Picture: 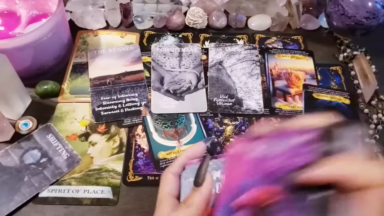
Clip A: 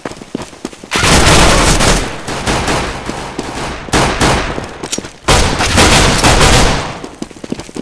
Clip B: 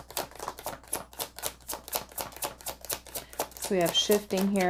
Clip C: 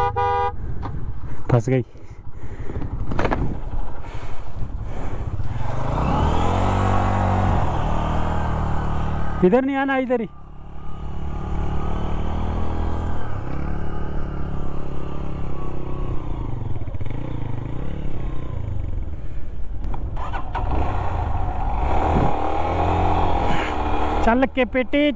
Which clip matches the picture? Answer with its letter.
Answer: B